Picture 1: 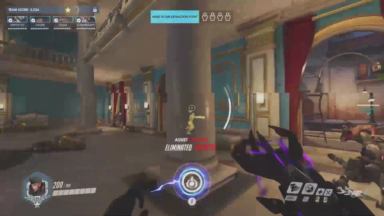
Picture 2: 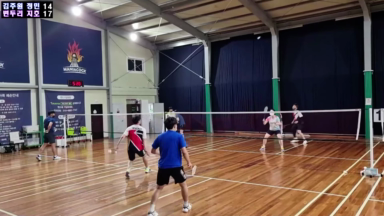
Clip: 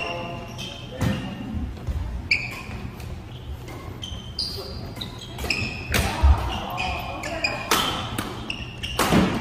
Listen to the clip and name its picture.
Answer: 2